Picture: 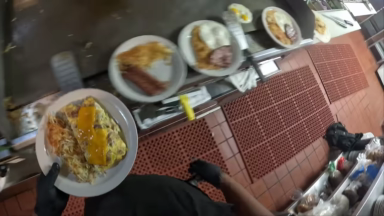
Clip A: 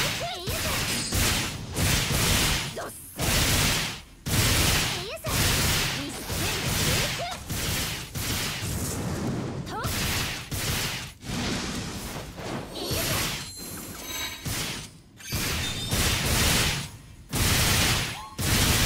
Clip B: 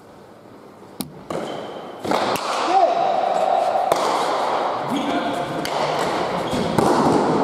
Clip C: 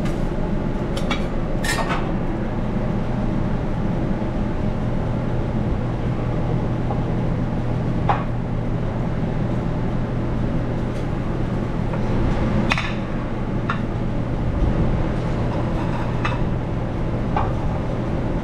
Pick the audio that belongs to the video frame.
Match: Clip C